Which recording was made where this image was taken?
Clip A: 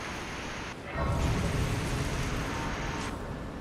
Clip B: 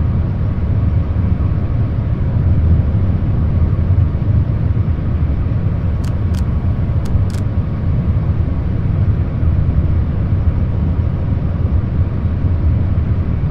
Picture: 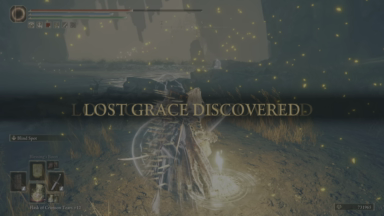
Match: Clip A